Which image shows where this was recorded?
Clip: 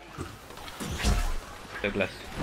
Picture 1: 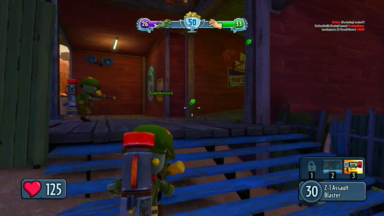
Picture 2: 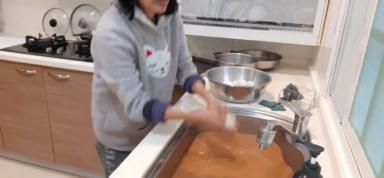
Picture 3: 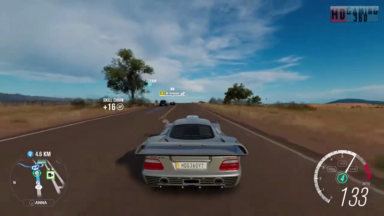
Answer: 1